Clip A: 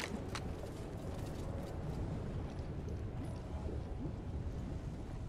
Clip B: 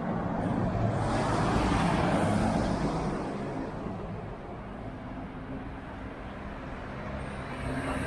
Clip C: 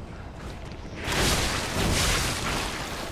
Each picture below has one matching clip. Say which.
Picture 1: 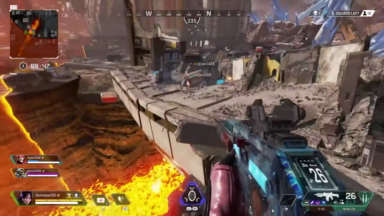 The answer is A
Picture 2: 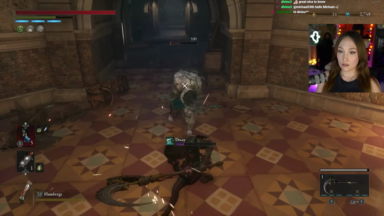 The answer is C